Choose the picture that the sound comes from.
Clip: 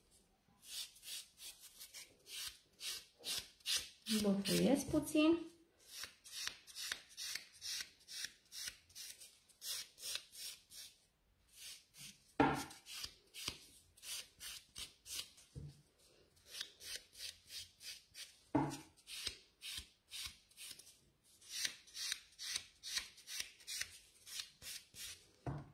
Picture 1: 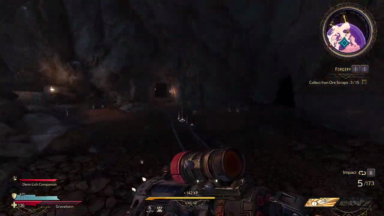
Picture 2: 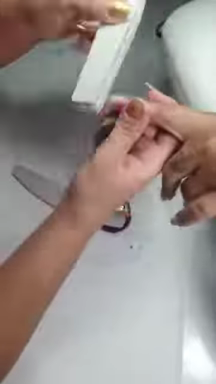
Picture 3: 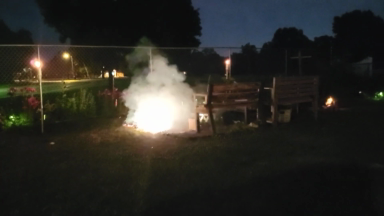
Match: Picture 2